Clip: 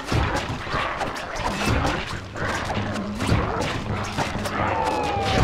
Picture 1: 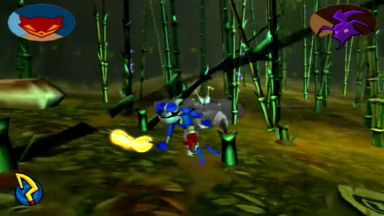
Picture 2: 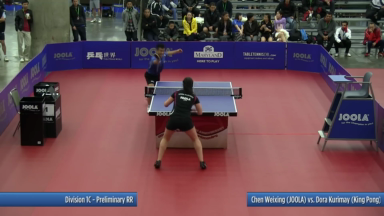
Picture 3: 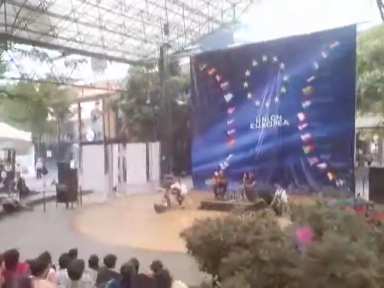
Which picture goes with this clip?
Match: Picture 1